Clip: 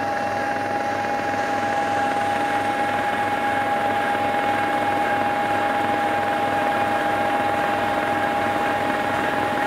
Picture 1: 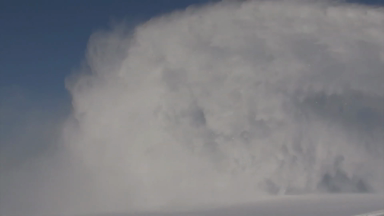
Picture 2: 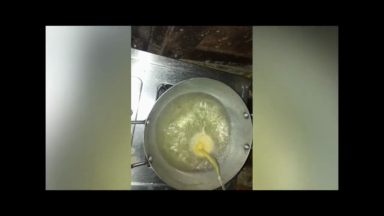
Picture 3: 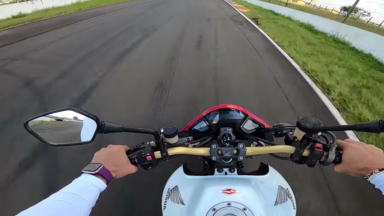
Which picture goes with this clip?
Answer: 1